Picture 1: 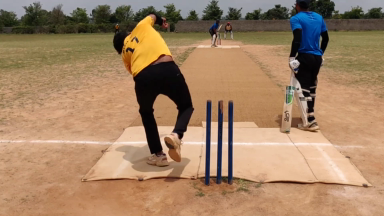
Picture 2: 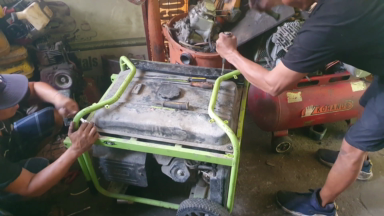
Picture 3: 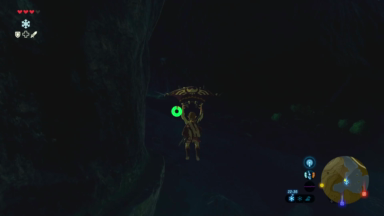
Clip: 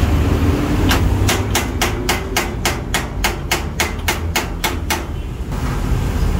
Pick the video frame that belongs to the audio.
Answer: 2